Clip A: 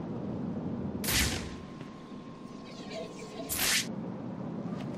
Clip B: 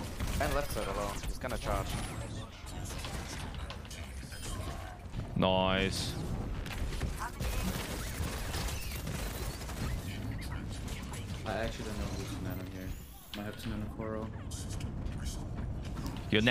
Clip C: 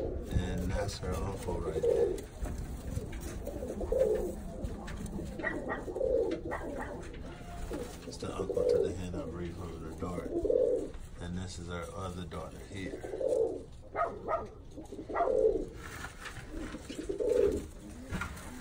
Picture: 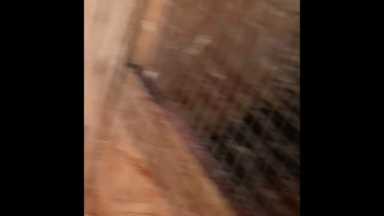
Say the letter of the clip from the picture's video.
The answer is C